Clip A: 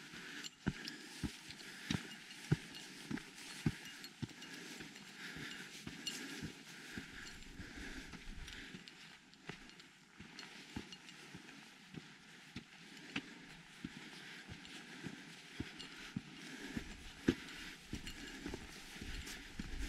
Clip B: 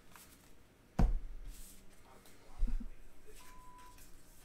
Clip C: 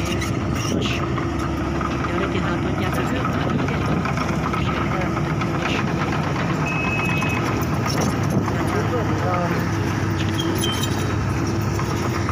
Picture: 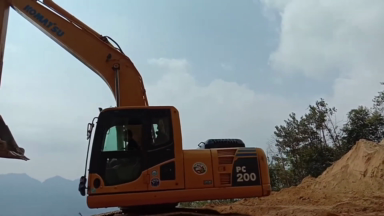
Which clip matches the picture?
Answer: C